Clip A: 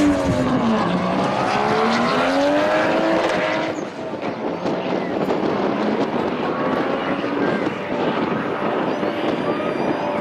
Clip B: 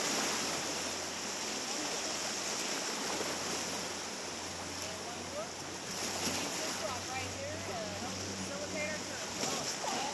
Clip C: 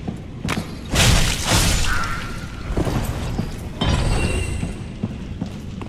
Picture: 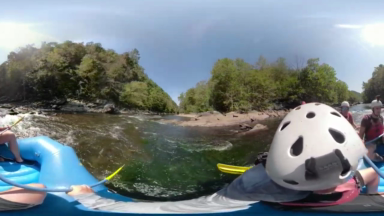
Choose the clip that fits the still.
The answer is B